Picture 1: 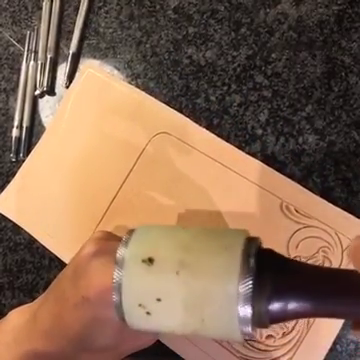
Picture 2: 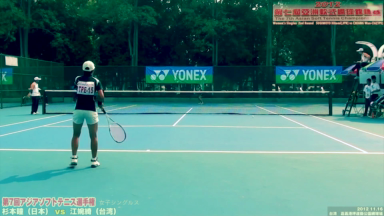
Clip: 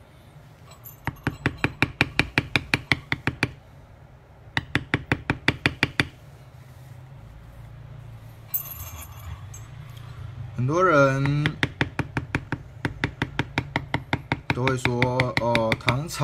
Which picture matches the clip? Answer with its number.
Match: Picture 1